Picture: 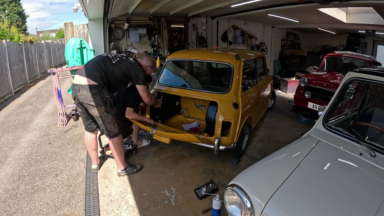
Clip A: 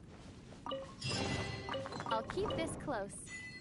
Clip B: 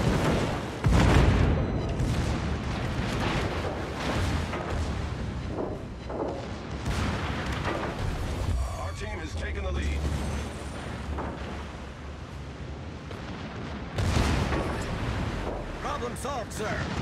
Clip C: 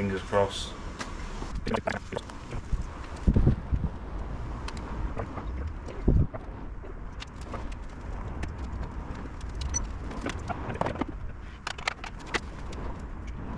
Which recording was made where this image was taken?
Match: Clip C